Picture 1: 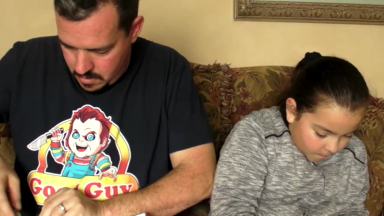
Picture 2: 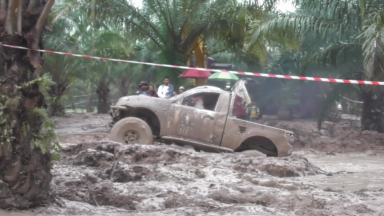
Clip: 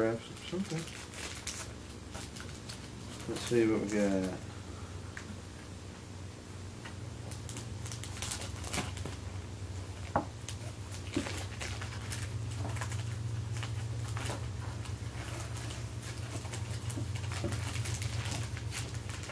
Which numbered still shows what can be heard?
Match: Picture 1